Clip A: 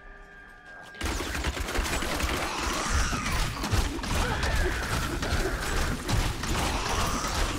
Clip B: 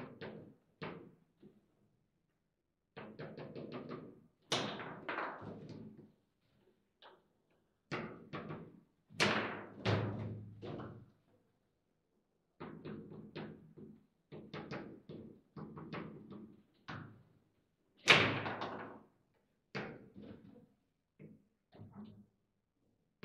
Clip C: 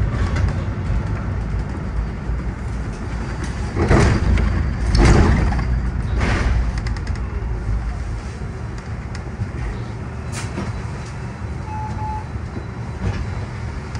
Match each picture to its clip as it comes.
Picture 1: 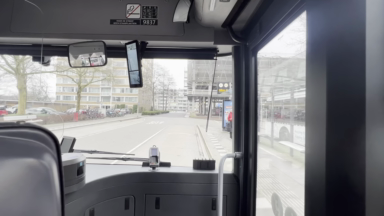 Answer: C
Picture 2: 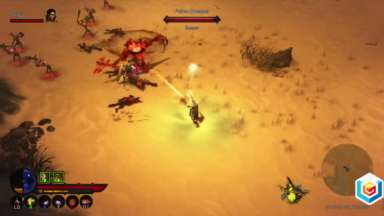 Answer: A